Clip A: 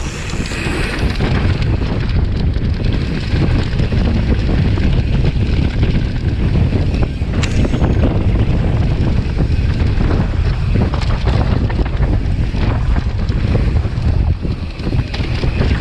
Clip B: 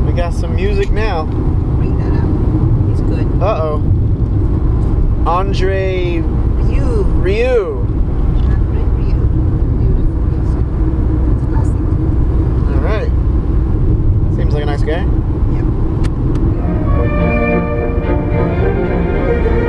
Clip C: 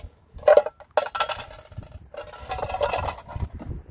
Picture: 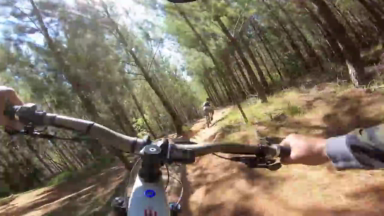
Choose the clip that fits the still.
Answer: A